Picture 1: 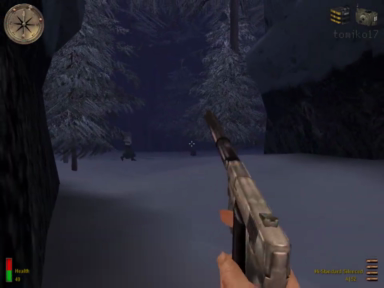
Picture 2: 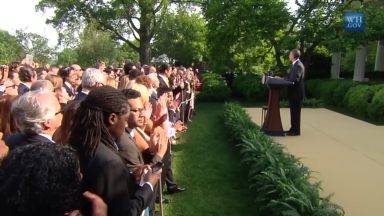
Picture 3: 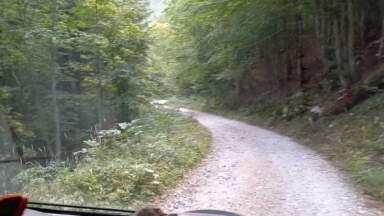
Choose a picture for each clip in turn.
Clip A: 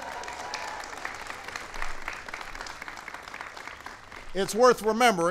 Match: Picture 2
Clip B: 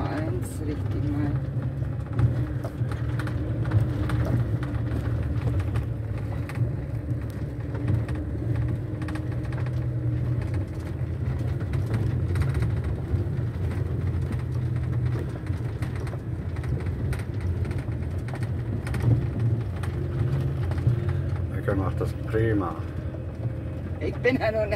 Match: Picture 3